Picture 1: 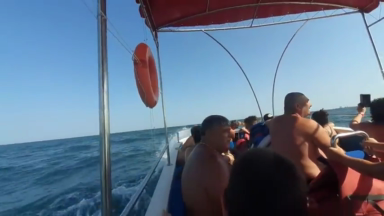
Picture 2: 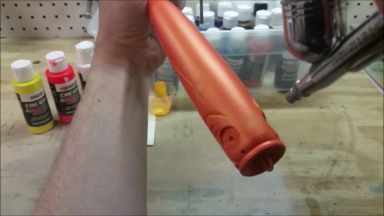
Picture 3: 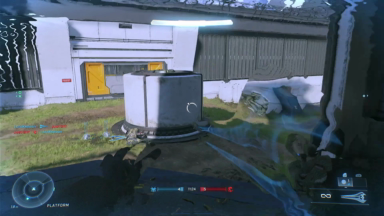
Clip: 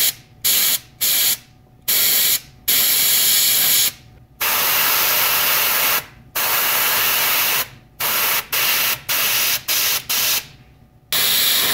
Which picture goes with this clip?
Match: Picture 2